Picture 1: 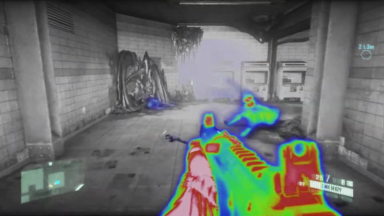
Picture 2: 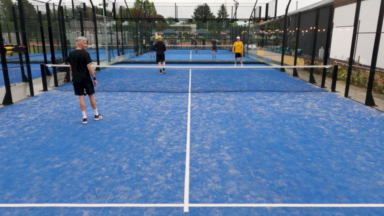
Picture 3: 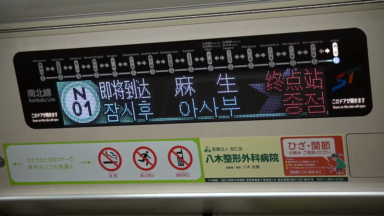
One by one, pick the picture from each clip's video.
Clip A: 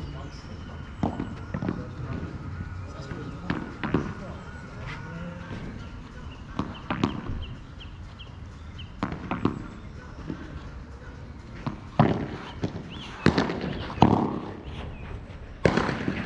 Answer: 2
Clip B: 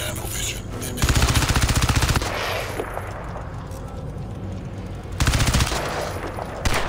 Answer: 1